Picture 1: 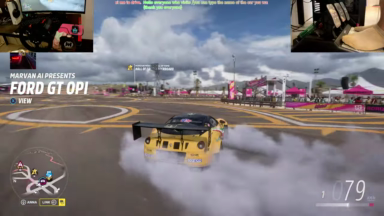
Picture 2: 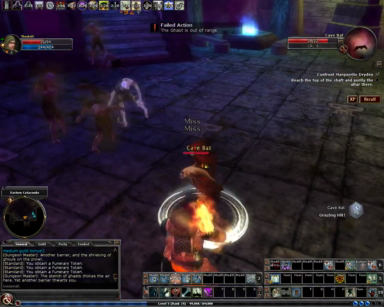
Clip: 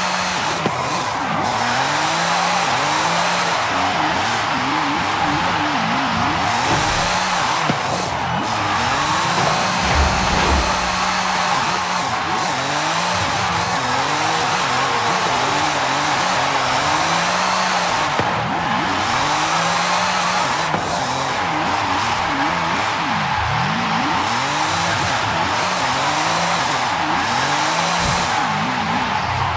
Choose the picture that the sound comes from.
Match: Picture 1